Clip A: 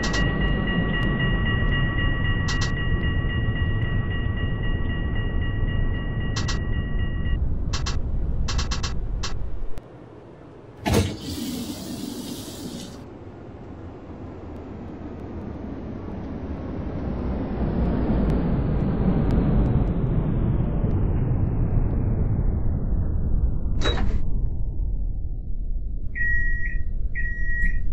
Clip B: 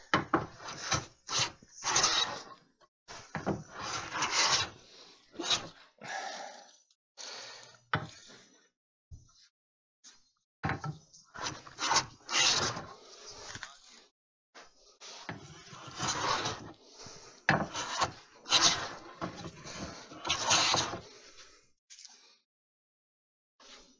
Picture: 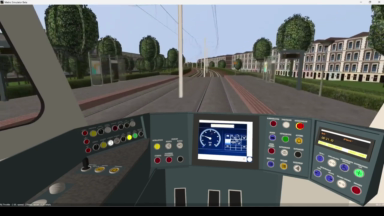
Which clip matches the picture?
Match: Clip A